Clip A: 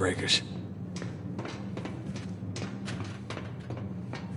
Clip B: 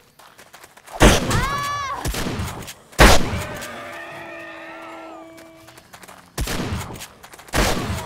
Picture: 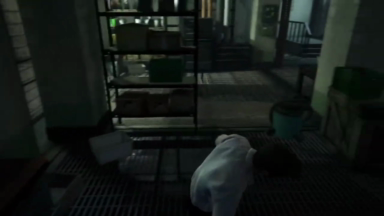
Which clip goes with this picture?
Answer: A